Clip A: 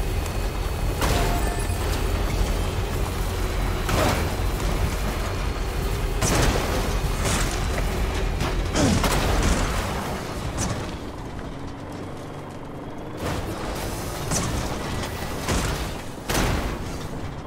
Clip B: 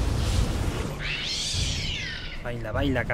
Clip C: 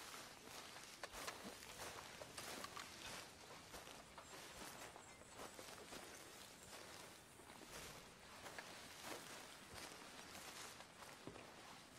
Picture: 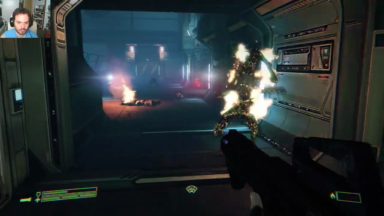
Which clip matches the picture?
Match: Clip B